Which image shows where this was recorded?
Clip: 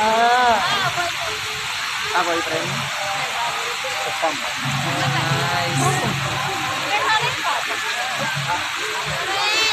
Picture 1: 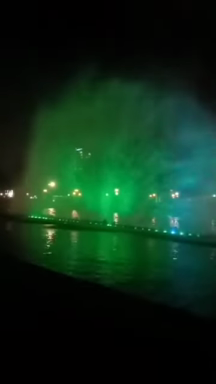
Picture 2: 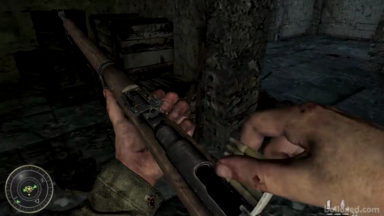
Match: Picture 1